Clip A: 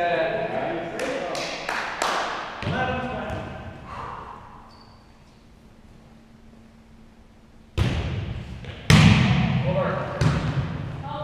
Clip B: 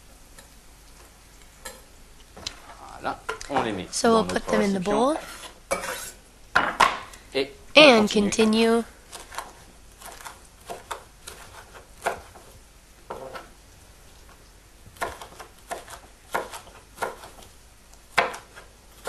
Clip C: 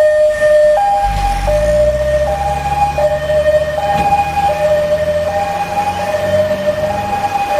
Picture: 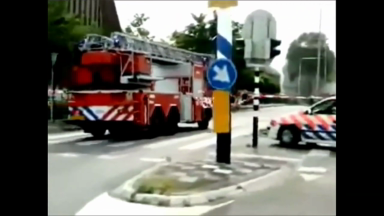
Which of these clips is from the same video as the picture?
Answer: C